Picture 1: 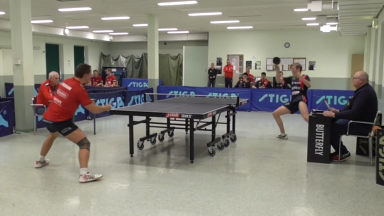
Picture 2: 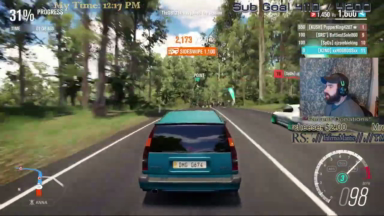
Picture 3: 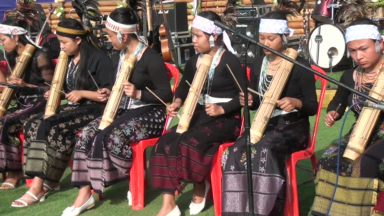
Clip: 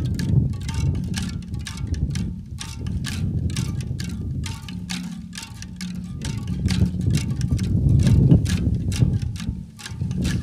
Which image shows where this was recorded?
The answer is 3